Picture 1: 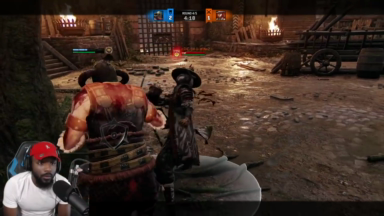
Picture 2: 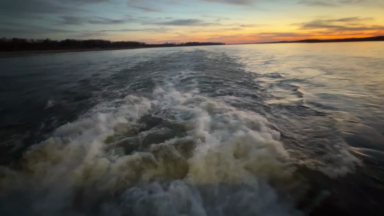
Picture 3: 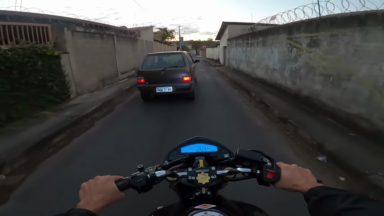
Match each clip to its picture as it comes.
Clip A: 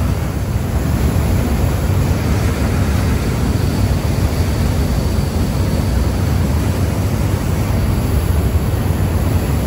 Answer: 2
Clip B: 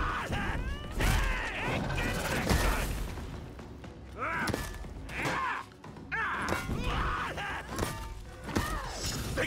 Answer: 1